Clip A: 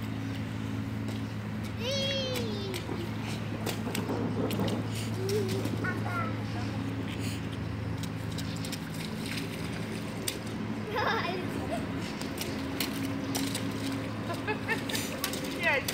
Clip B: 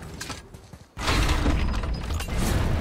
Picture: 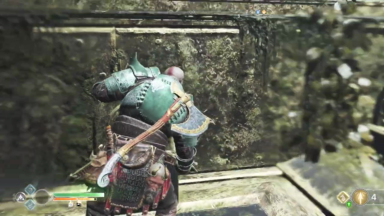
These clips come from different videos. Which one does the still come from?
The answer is B